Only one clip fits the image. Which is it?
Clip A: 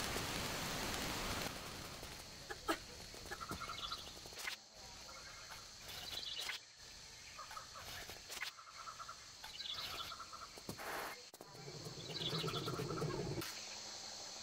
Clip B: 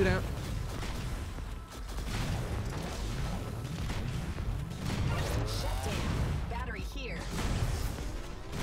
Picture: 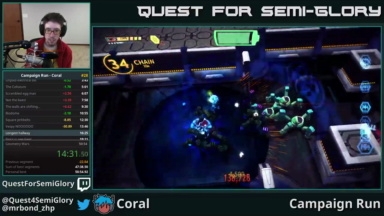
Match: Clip B